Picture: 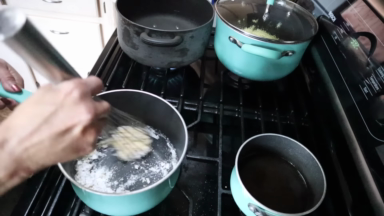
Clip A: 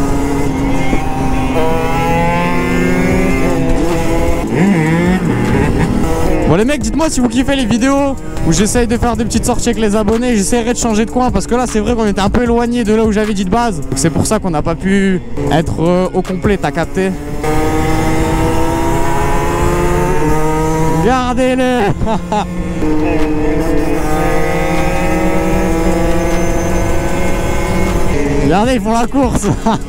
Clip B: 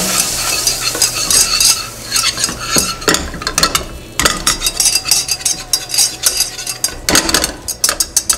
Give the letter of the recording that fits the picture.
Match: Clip B